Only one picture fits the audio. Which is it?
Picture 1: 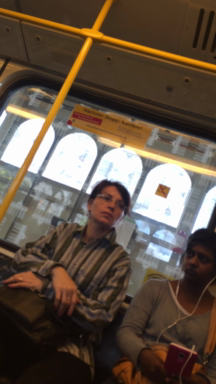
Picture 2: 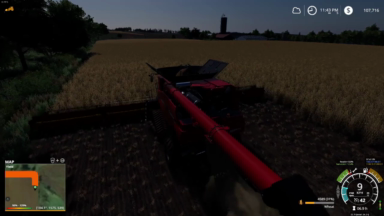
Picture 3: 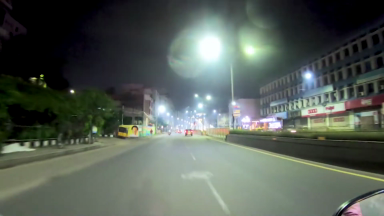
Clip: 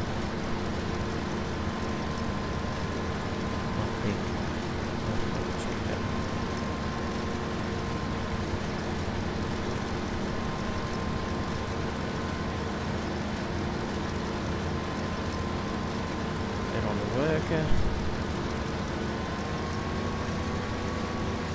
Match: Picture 2